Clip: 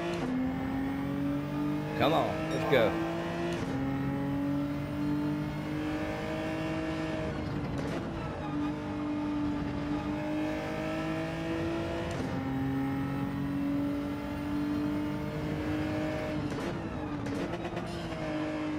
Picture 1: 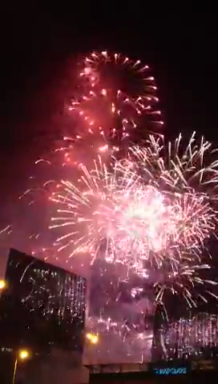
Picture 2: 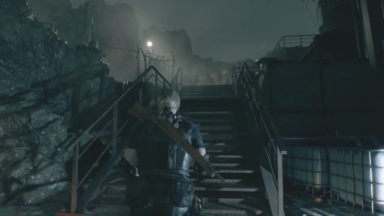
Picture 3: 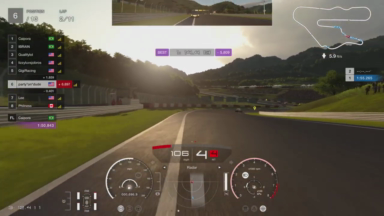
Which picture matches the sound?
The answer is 3